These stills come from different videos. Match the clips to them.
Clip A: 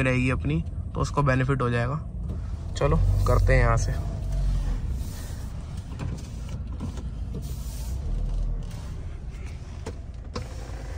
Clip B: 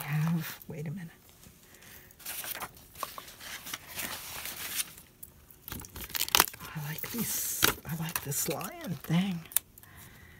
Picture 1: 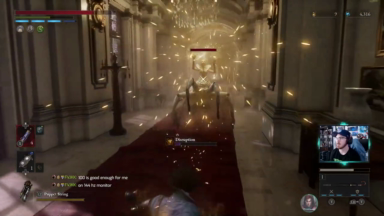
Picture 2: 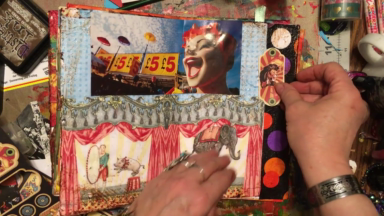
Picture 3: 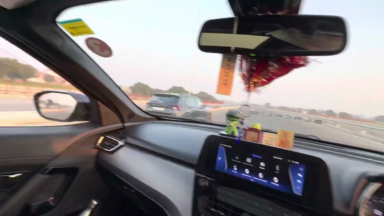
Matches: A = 3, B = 2